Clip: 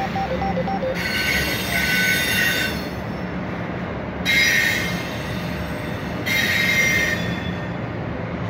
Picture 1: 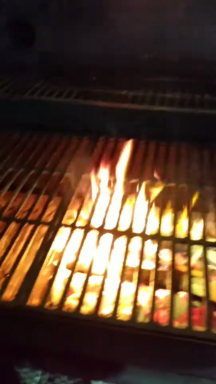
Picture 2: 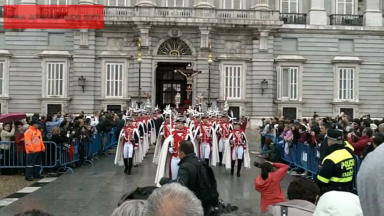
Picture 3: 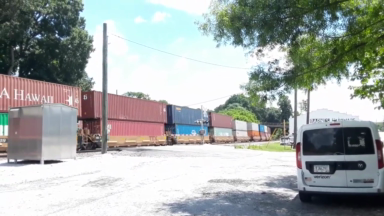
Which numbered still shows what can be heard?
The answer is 3